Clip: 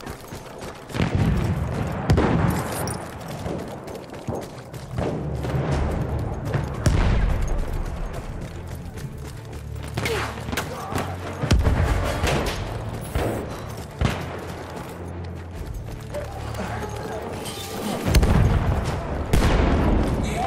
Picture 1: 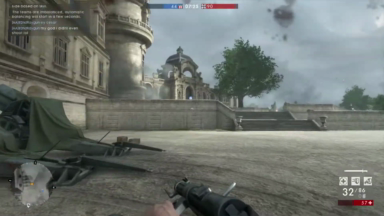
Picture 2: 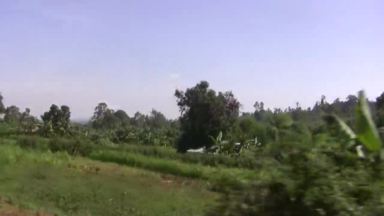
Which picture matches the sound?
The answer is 1